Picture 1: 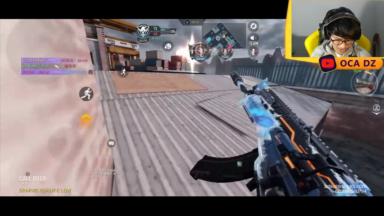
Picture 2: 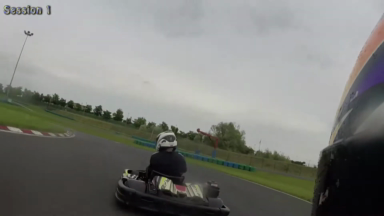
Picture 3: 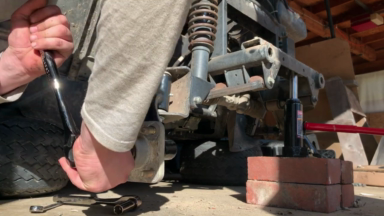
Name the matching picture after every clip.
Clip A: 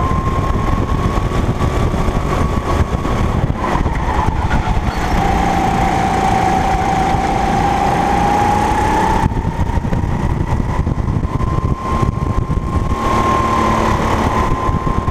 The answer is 2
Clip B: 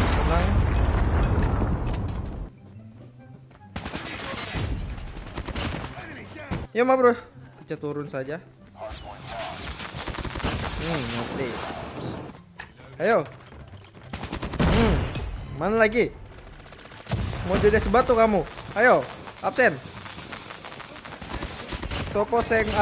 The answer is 1